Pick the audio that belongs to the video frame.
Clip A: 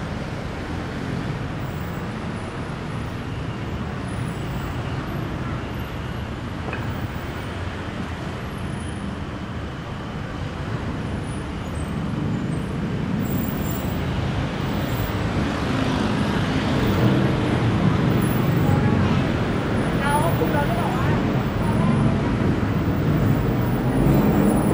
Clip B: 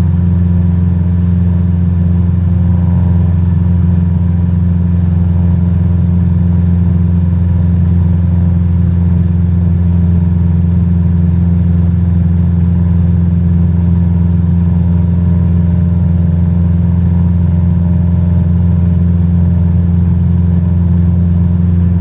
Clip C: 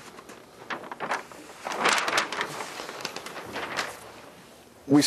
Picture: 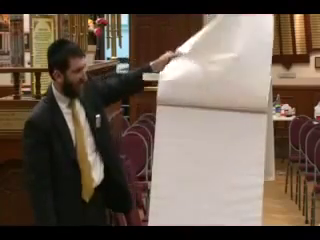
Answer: C